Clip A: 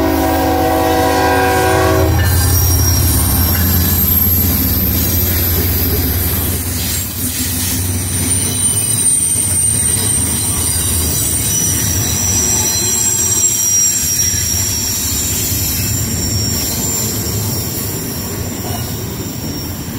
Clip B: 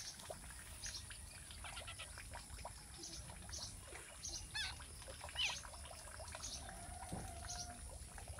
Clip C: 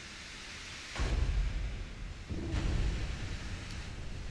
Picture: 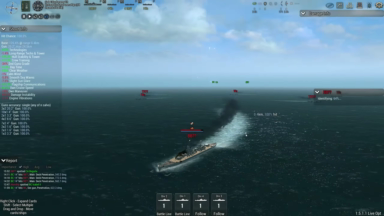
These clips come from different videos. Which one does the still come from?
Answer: C